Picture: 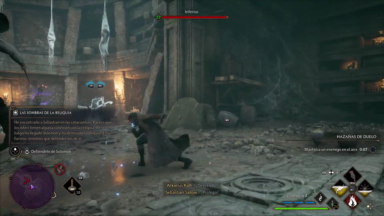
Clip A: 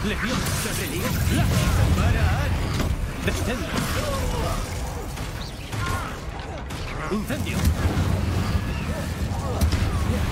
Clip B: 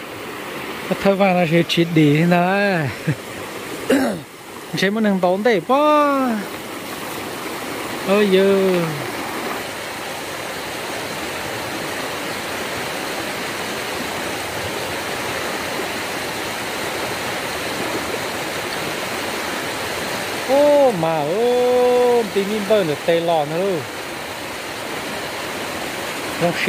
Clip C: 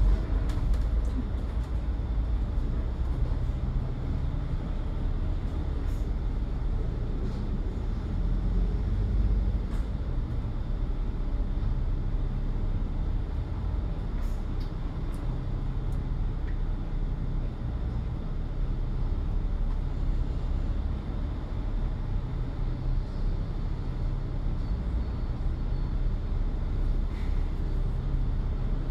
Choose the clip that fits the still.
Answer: A